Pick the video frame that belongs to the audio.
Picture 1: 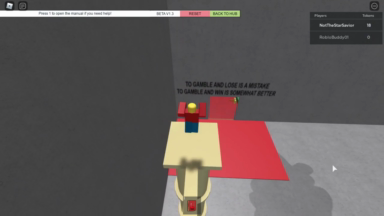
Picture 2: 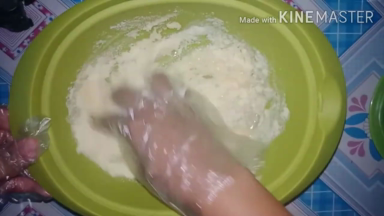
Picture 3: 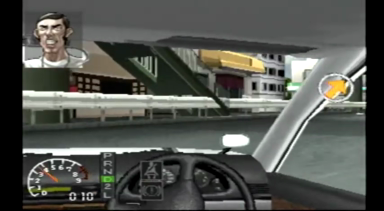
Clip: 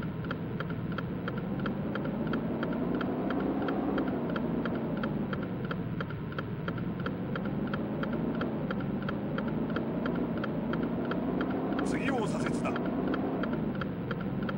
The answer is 3